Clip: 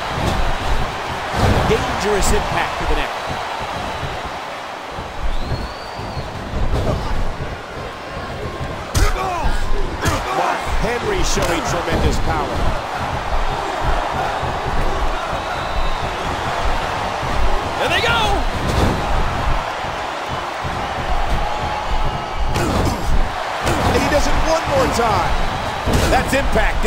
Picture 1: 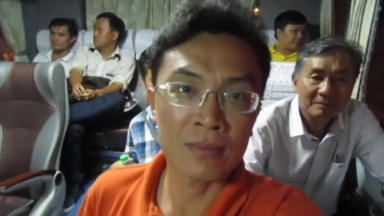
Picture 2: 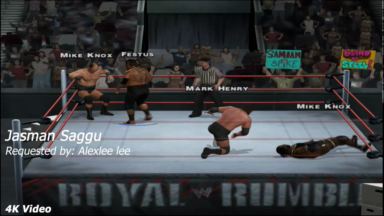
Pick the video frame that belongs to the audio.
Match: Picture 2